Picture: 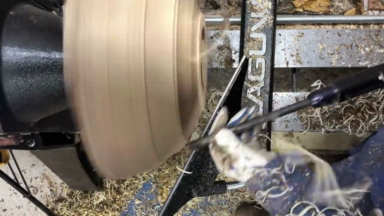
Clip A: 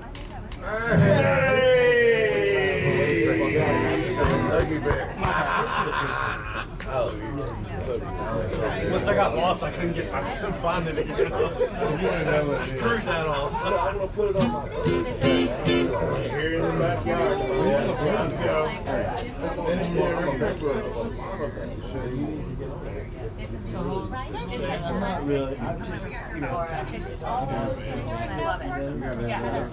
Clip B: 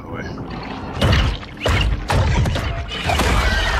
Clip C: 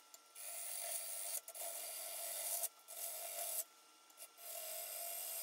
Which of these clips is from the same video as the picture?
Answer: C